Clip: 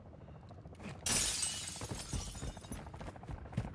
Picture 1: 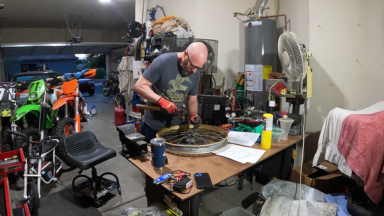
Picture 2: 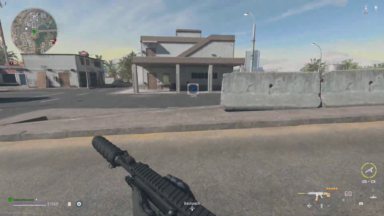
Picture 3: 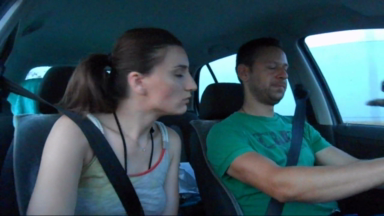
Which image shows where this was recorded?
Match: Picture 2